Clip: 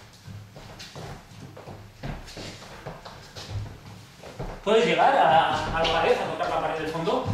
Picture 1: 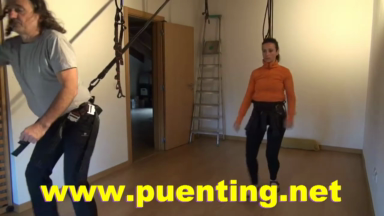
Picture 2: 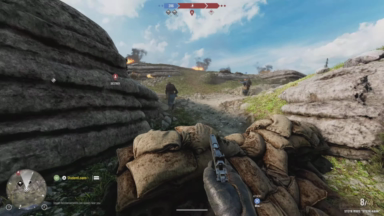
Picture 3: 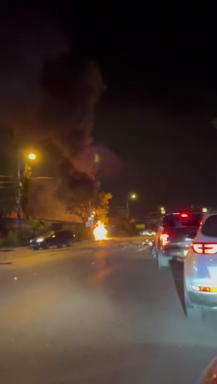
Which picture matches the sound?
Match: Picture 1